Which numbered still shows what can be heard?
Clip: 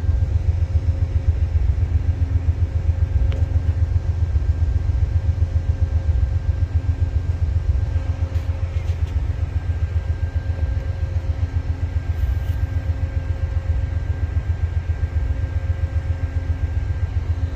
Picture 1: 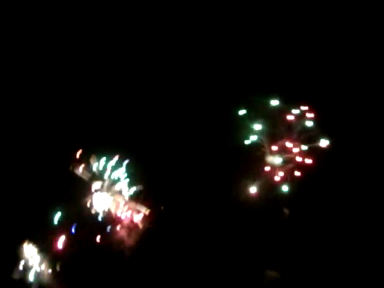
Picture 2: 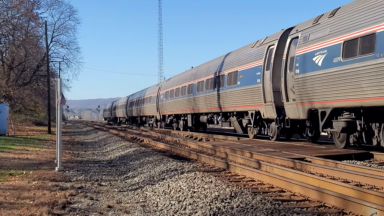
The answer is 2